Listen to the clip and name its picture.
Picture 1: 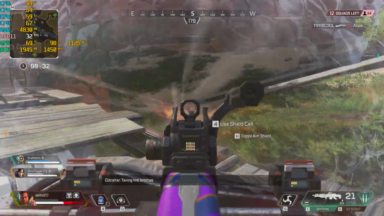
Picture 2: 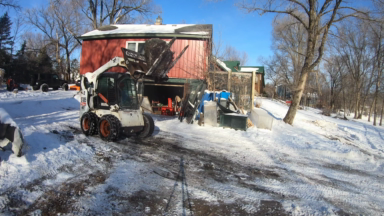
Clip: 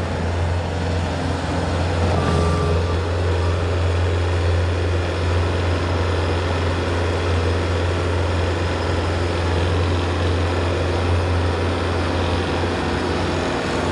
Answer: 2